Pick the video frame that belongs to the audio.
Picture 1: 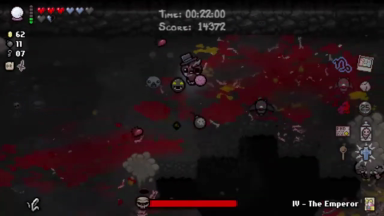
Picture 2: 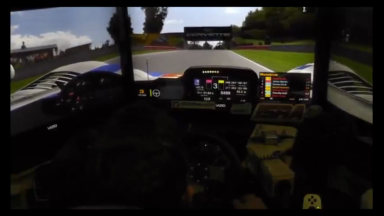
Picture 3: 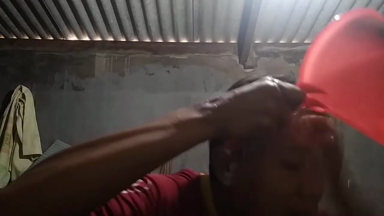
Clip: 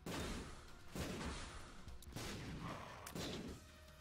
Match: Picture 1